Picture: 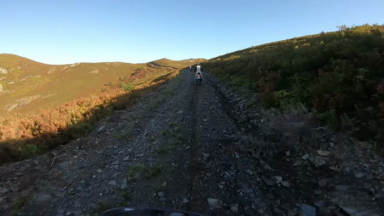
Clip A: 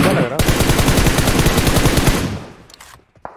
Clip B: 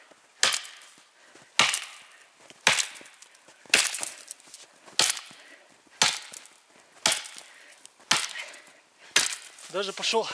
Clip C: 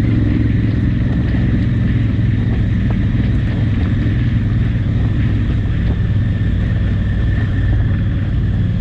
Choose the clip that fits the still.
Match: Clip C